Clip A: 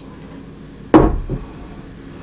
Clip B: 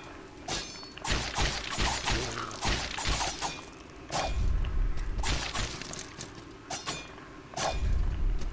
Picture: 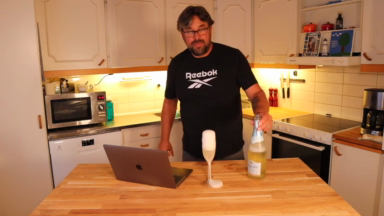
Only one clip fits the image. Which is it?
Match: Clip A